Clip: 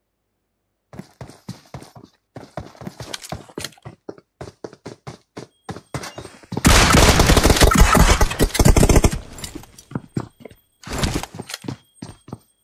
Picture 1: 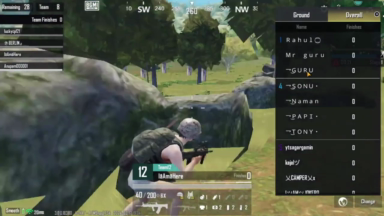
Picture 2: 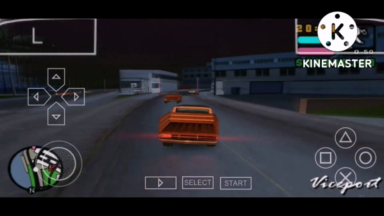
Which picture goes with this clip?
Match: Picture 1